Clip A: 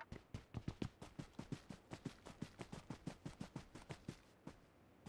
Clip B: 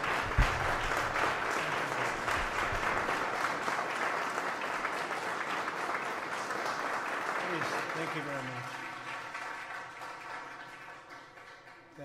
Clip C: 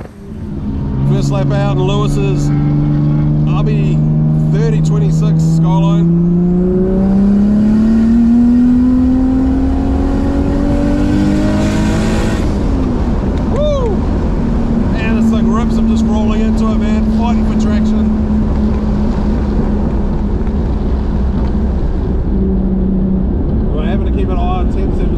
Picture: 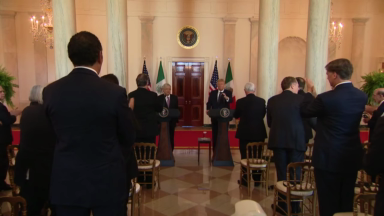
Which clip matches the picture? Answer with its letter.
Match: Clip B